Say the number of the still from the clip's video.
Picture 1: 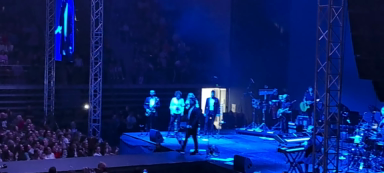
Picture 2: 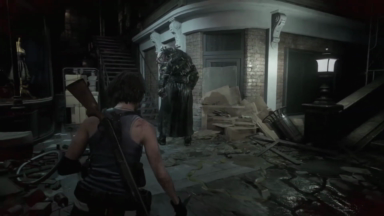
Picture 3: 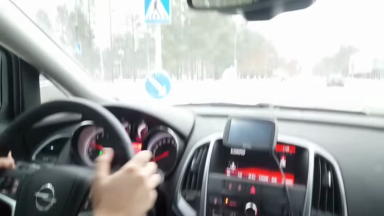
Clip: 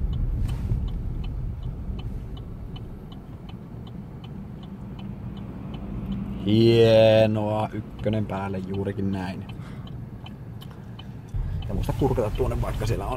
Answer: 3